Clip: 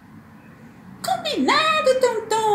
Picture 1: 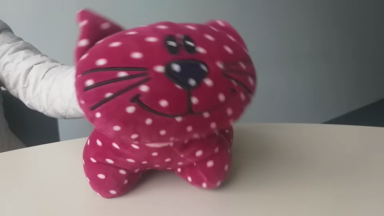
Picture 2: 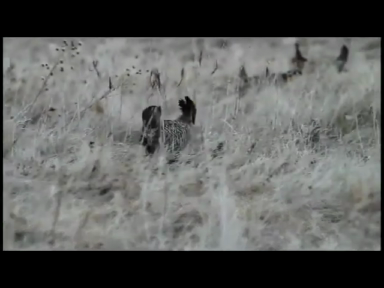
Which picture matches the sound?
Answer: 1